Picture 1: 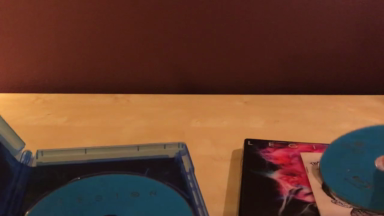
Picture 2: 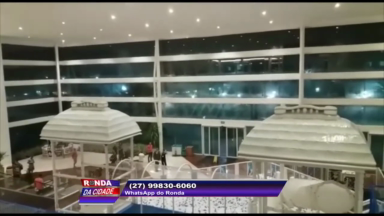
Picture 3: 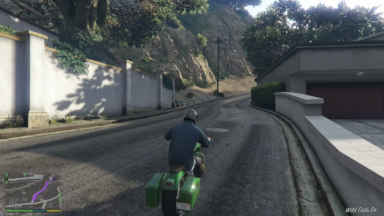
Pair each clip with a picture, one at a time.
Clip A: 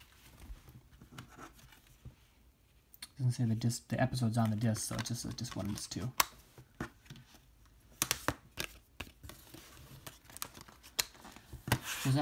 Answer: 1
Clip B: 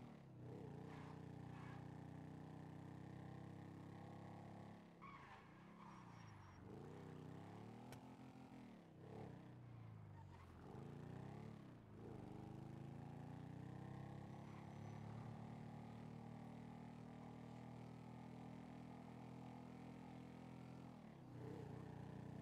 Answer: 3